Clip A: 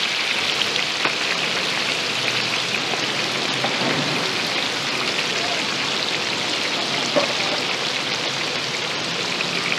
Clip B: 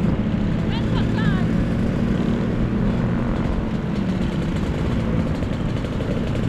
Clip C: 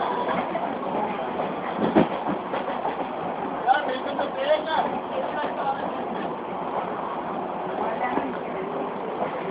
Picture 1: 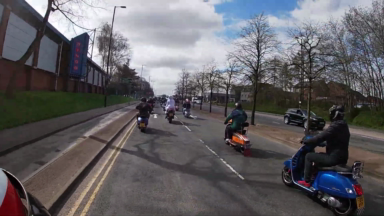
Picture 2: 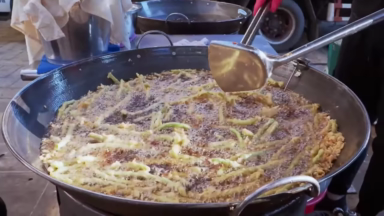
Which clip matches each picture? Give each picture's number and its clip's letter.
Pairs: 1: B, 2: A